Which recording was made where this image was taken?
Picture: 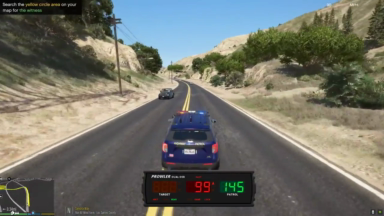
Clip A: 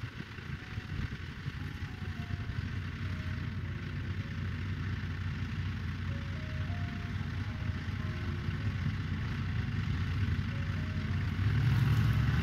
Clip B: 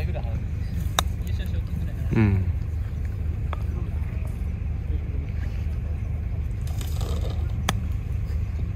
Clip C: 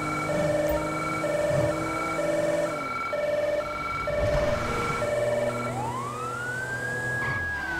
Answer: C